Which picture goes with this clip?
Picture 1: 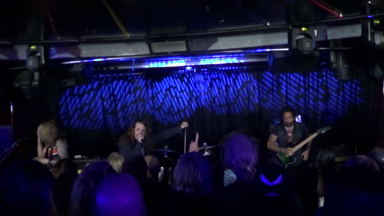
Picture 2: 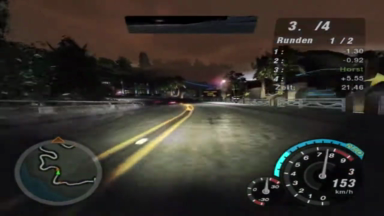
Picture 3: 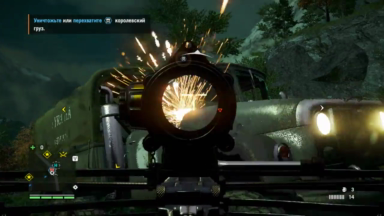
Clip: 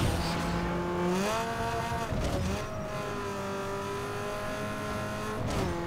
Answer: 2